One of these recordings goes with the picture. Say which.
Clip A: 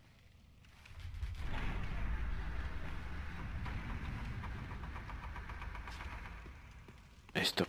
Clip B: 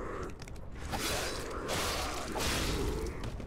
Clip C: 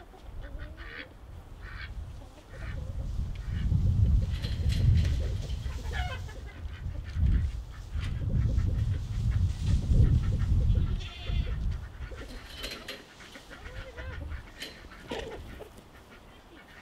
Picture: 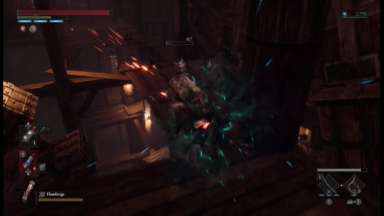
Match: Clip B